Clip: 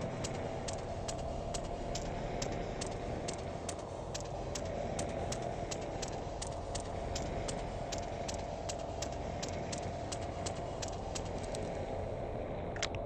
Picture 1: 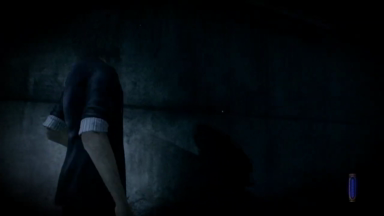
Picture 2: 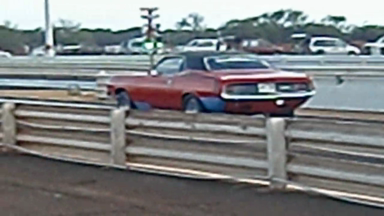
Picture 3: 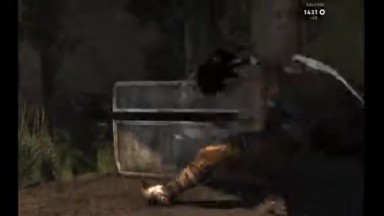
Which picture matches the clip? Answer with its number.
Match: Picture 1